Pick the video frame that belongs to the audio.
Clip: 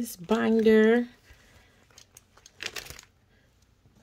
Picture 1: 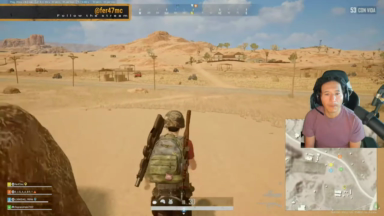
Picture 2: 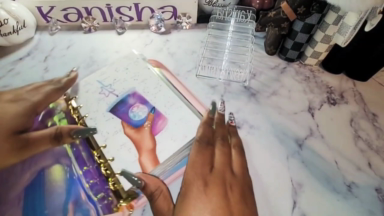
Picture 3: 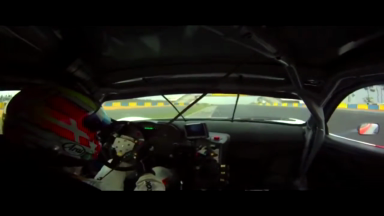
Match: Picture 2